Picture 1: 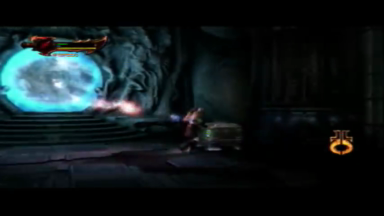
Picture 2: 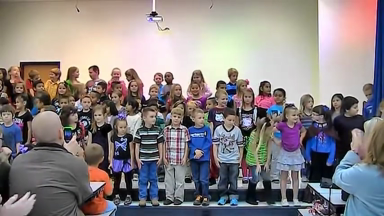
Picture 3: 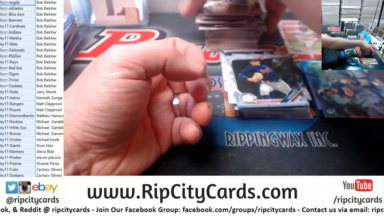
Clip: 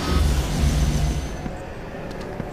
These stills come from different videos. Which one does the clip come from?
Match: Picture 1